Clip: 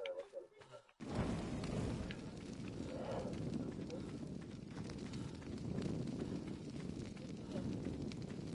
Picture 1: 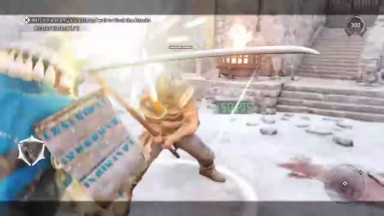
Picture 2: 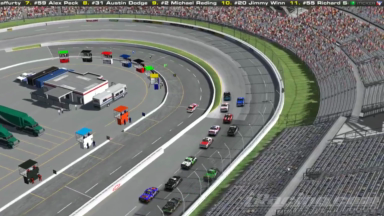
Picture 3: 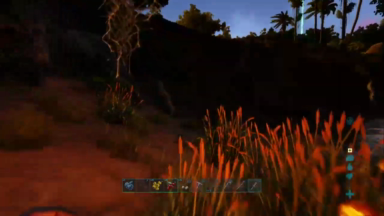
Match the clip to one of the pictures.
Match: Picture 3